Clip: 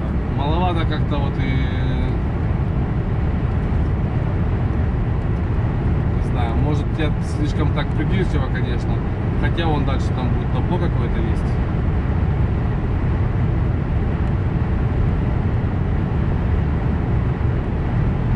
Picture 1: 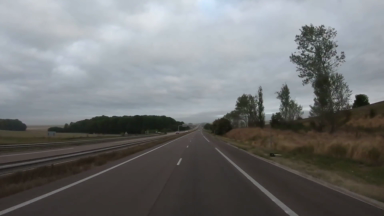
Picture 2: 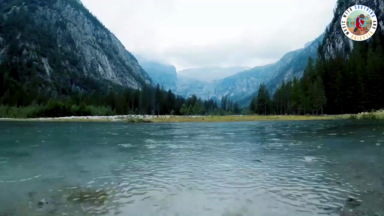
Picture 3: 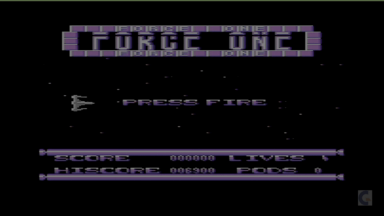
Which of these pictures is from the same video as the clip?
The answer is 1